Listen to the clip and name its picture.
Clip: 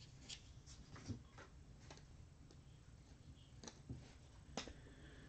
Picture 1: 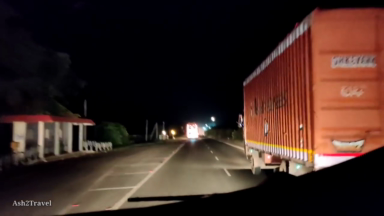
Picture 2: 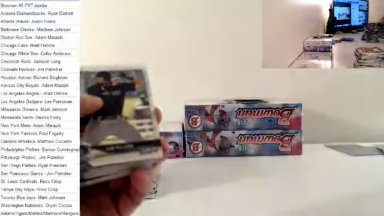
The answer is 2